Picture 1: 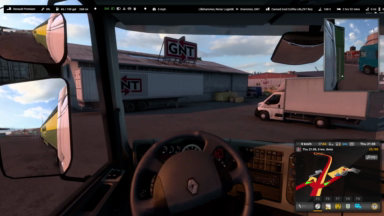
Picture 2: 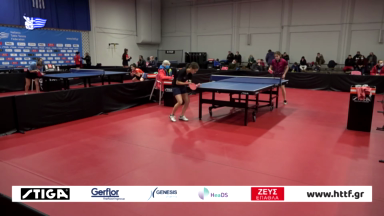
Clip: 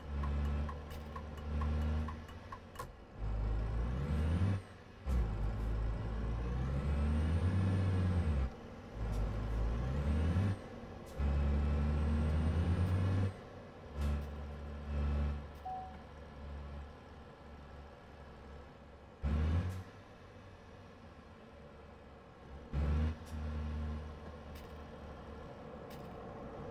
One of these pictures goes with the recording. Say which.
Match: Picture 1